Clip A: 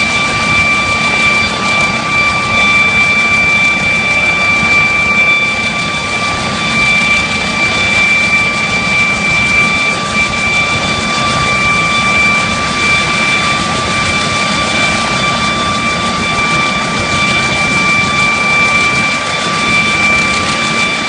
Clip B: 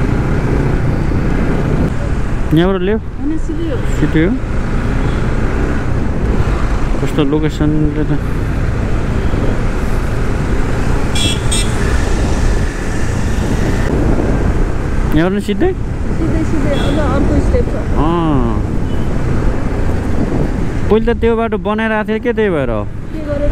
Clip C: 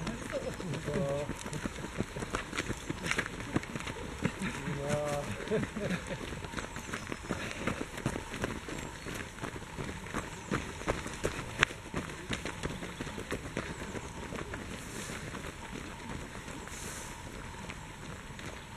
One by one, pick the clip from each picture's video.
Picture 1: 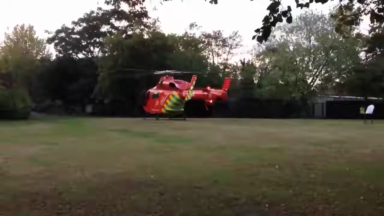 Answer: A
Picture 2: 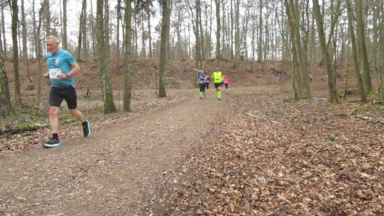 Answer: C